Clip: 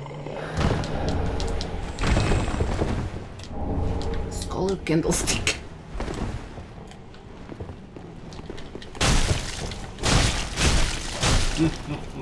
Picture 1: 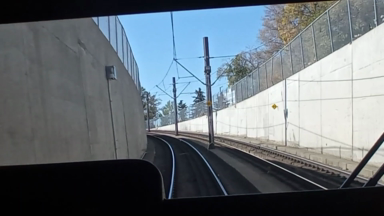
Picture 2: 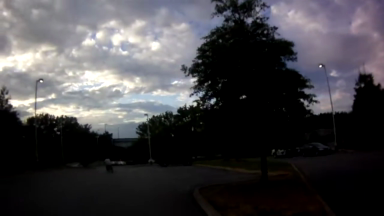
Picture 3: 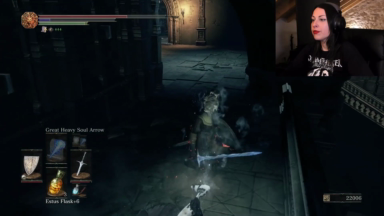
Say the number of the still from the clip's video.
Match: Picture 3